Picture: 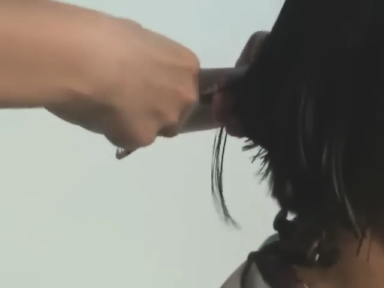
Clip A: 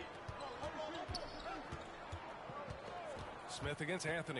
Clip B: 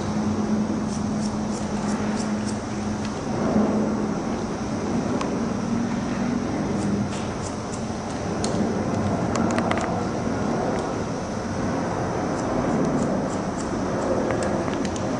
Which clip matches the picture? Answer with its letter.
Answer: B